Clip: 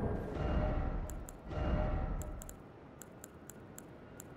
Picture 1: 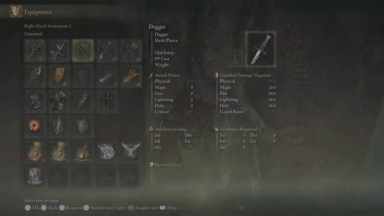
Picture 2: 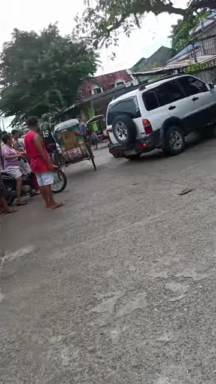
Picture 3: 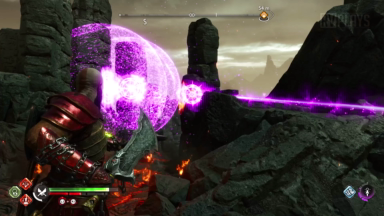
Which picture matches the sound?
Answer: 1